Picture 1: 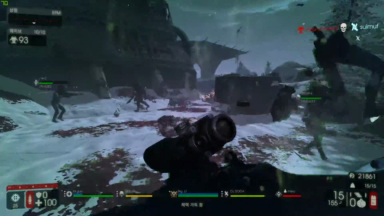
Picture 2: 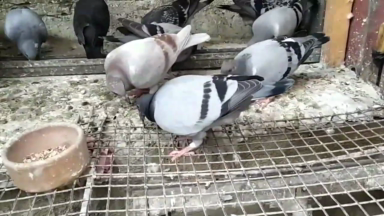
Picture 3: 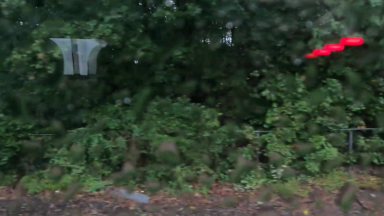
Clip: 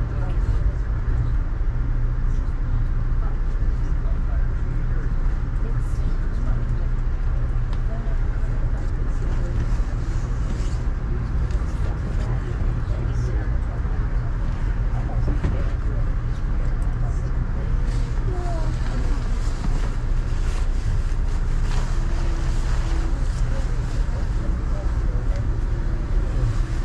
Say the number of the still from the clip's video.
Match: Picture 3